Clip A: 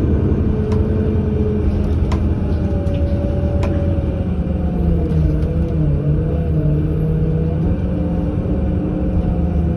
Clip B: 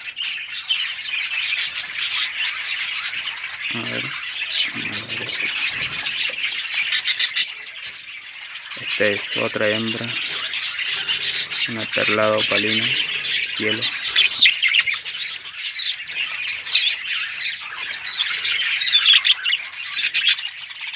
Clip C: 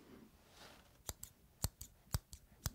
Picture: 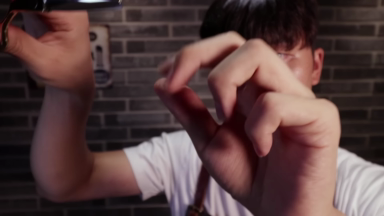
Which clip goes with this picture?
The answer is C